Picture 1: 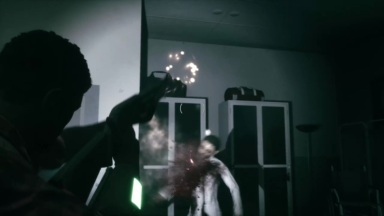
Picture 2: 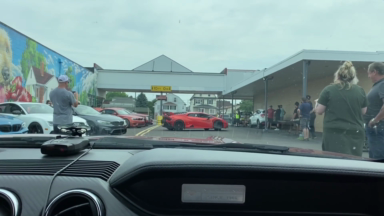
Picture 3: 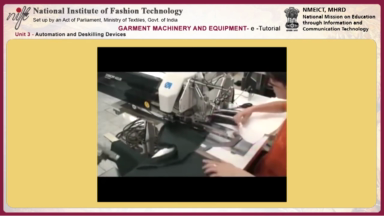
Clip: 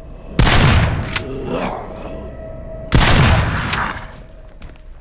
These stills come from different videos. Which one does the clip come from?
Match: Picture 1